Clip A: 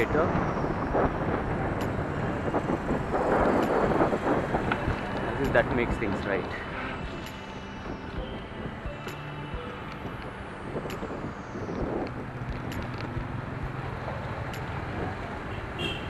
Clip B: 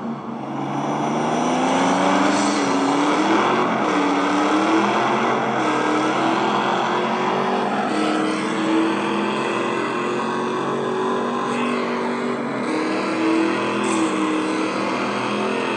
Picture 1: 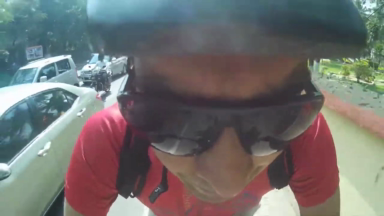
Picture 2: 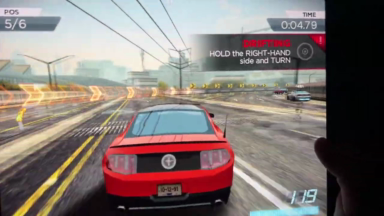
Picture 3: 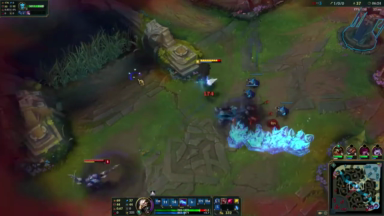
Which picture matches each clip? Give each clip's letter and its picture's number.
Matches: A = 1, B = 2